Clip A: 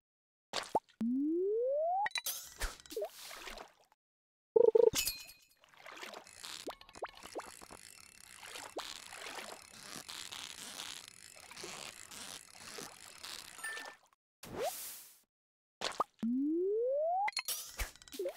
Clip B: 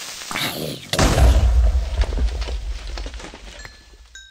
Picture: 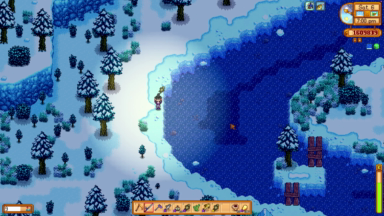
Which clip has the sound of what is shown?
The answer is A